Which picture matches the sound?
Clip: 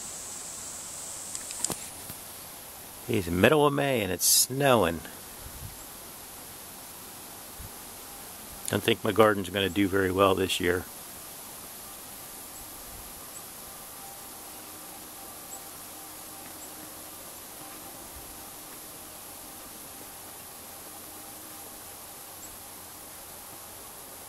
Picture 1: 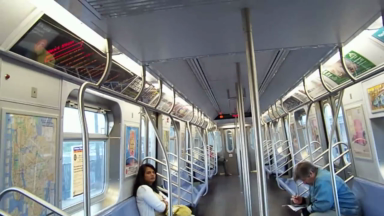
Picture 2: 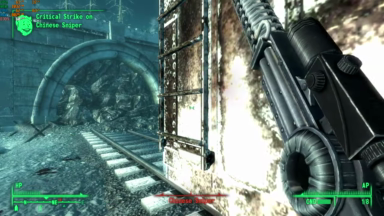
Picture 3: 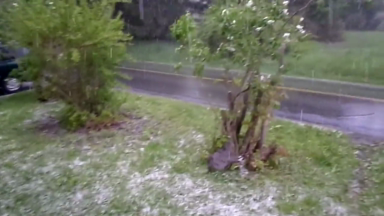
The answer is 3